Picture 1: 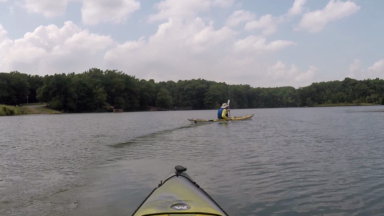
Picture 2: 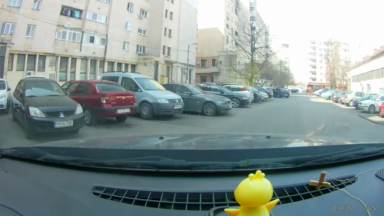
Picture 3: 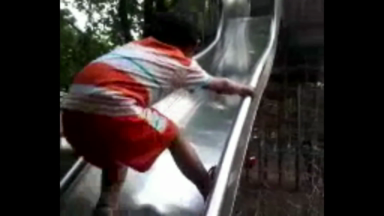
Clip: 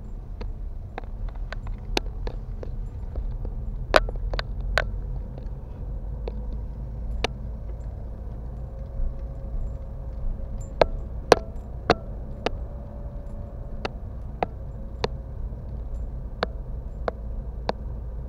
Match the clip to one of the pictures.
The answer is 2